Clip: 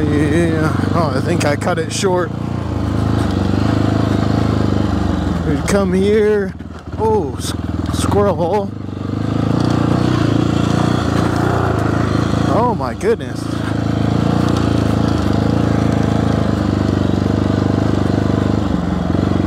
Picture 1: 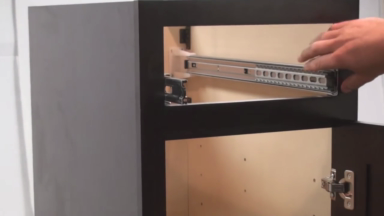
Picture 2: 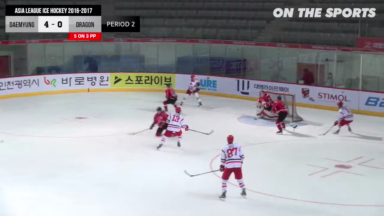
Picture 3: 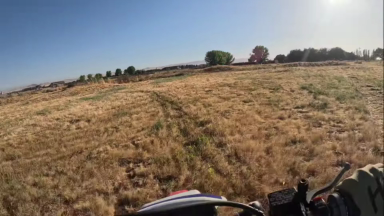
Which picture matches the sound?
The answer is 3